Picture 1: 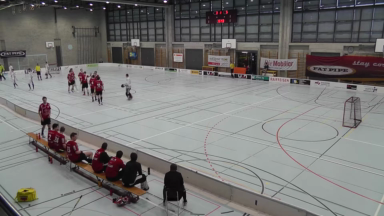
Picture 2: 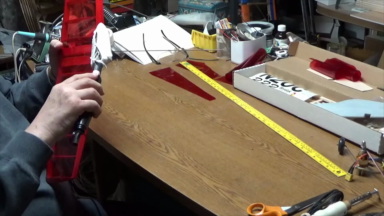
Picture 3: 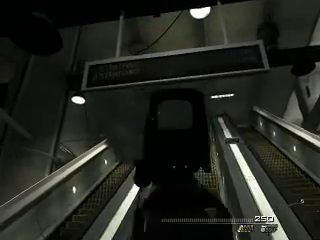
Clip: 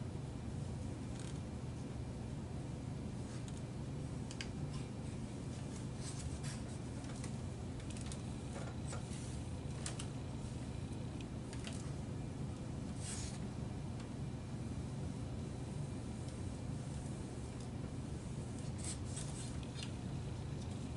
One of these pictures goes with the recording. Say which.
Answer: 2